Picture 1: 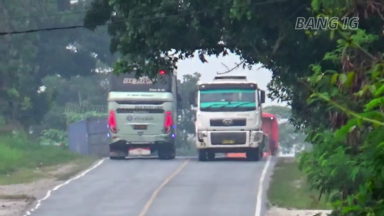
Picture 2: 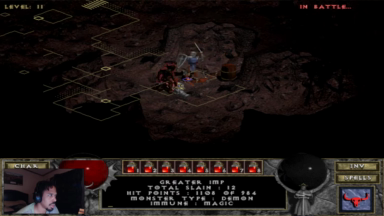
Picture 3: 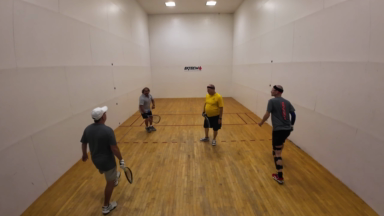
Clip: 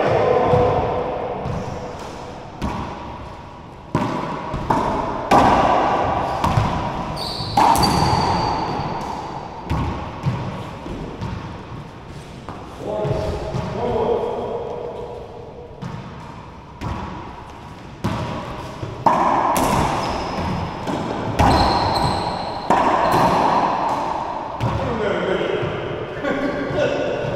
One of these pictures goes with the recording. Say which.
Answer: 3